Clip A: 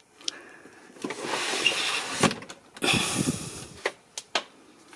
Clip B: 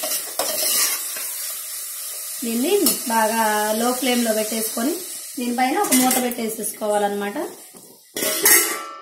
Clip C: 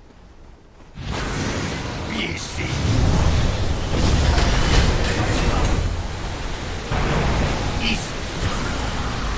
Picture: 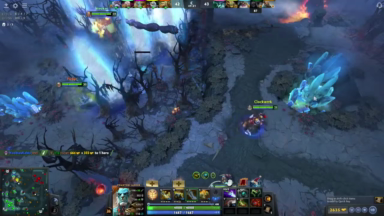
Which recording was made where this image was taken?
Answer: C